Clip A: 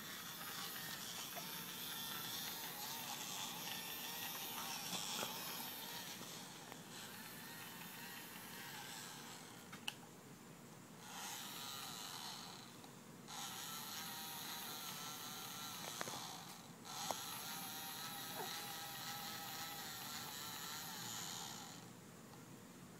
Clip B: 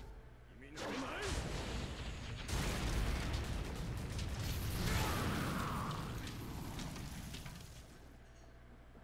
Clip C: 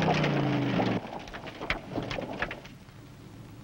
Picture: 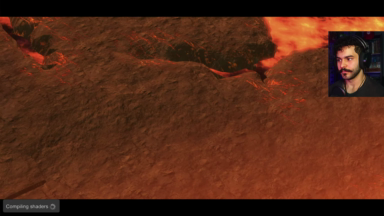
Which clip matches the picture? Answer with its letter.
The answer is B